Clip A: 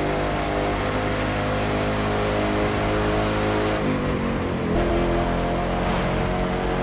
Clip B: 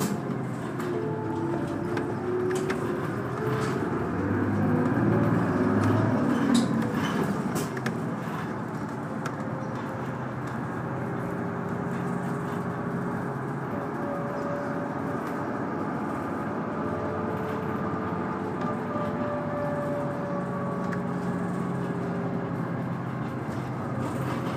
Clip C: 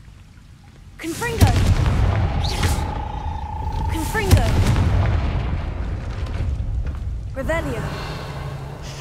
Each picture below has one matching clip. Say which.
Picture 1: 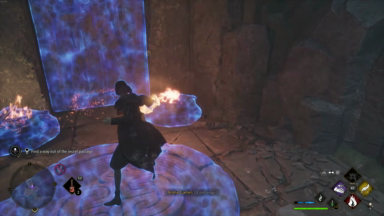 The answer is C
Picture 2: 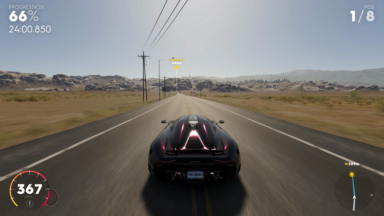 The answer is A